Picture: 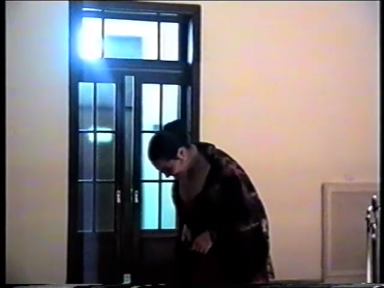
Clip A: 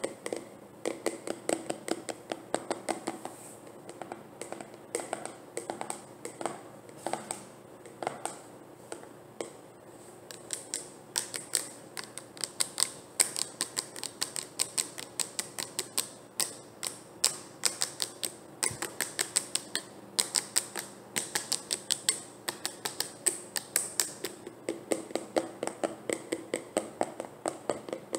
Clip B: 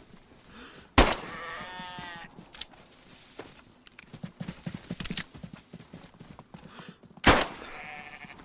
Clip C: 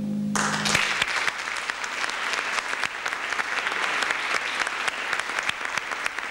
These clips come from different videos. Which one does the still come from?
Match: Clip C